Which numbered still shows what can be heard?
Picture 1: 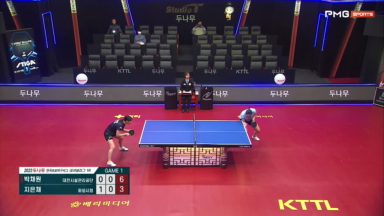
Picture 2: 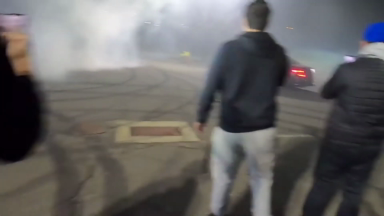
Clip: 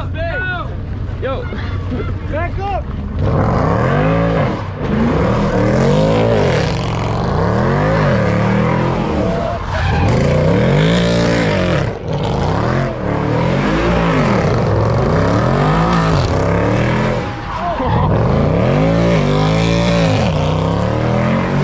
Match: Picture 2